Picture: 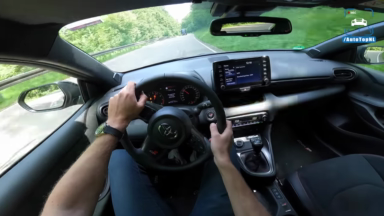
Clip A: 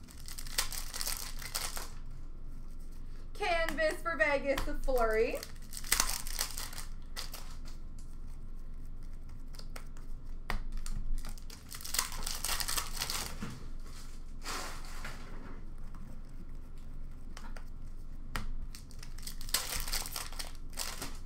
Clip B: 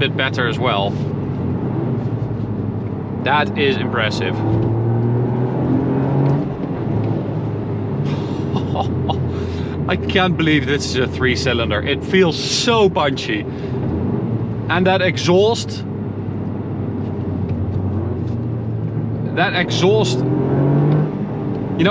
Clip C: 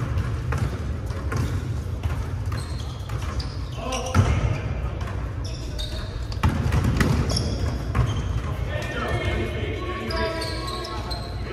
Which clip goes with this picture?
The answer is B